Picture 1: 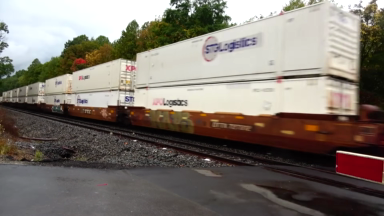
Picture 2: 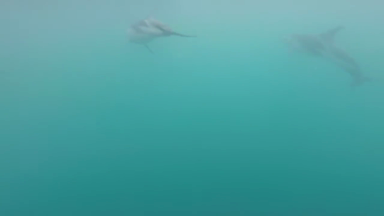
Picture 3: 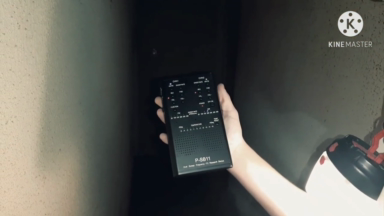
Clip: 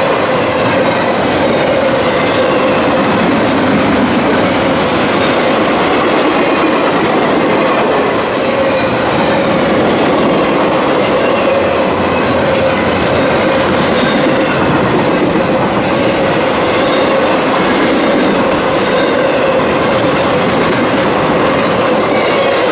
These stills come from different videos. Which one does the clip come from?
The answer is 1